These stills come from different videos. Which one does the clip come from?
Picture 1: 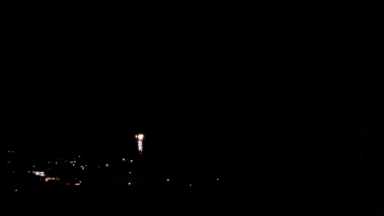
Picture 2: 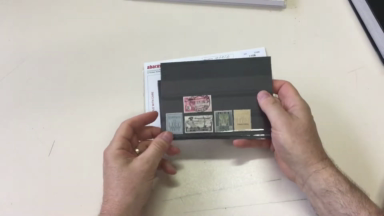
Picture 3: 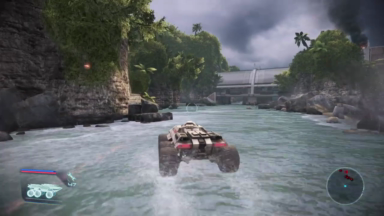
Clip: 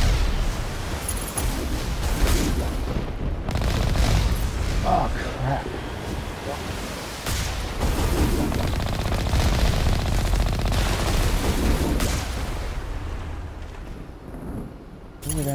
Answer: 3